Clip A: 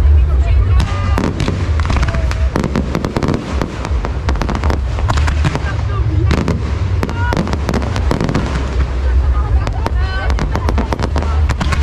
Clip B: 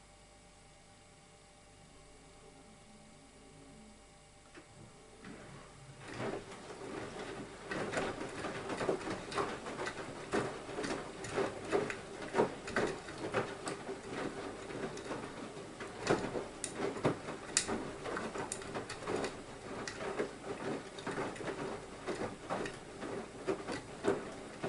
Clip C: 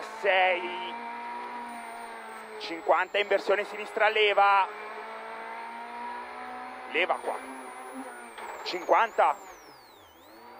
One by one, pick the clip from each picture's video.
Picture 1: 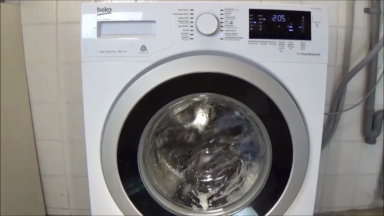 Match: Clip B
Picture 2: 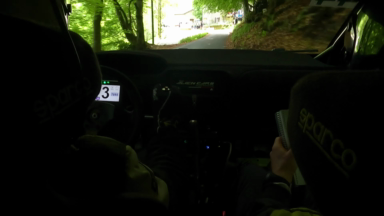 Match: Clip C